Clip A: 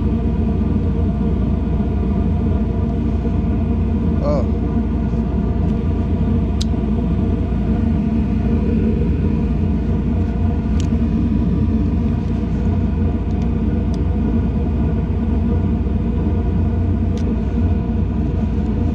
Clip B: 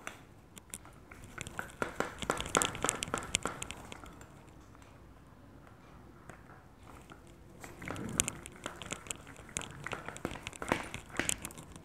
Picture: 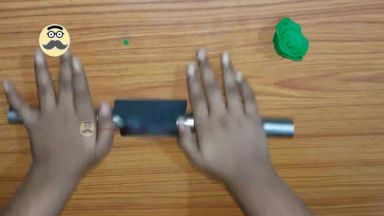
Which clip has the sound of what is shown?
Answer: B